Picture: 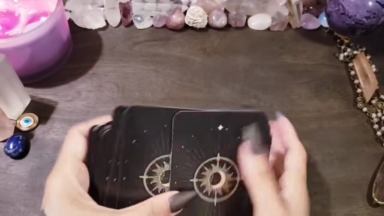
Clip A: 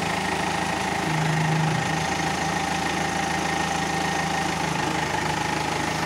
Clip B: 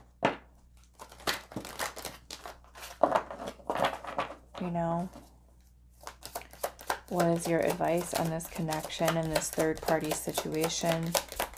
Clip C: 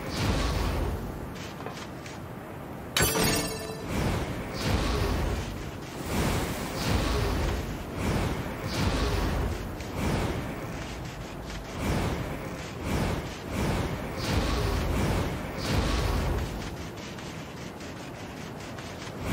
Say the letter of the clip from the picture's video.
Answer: B